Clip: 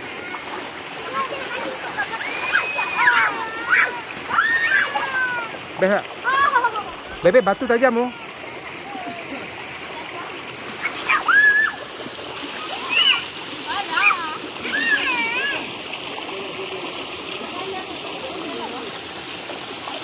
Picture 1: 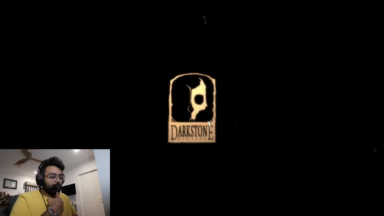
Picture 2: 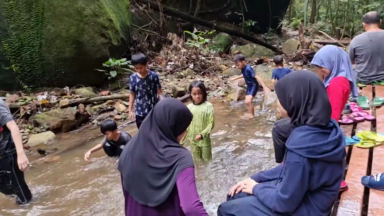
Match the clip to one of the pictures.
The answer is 2